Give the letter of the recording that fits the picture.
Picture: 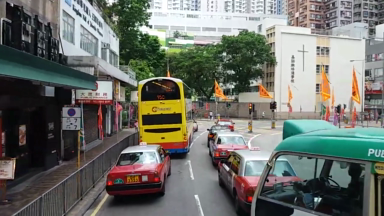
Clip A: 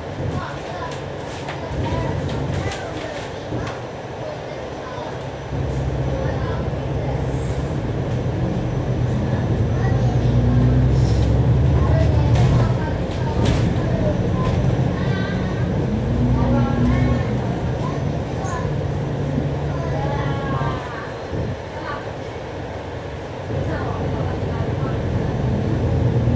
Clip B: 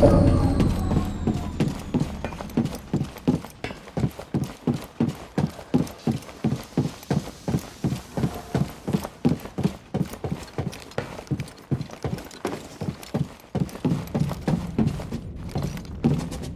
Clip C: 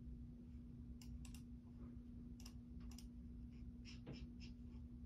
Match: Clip A